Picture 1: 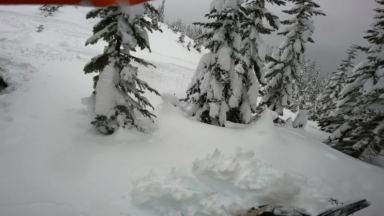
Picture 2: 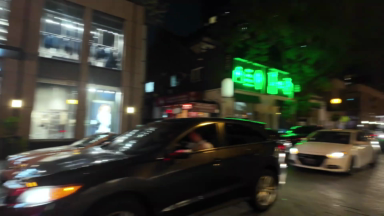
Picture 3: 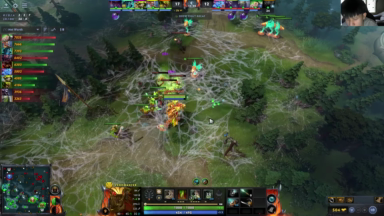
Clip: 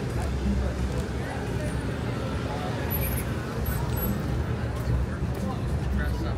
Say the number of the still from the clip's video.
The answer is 2